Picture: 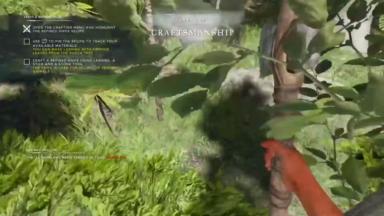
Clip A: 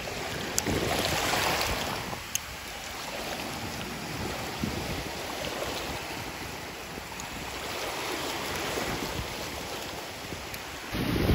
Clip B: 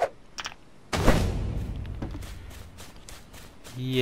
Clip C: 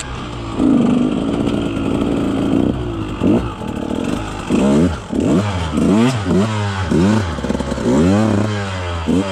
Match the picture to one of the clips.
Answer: B